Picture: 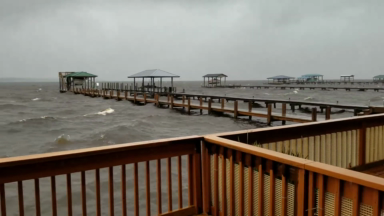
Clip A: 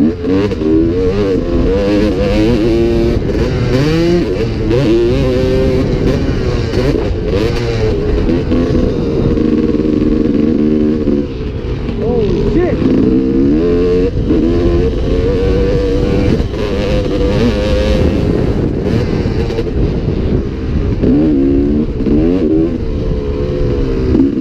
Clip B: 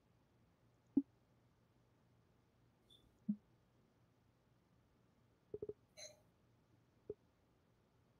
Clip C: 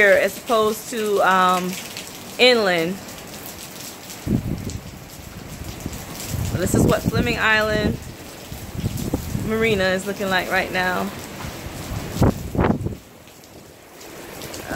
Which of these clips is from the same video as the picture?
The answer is C